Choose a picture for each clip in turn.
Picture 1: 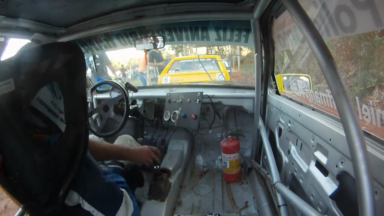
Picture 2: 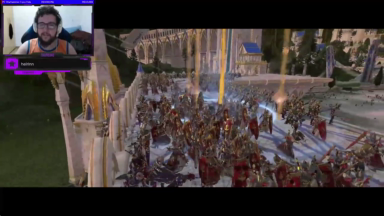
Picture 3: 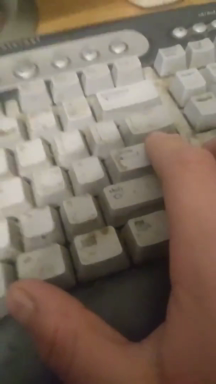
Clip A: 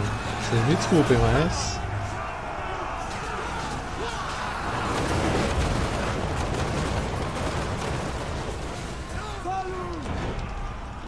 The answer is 2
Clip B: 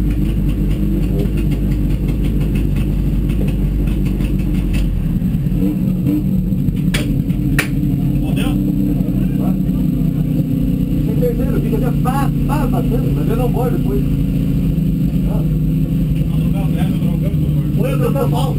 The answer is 1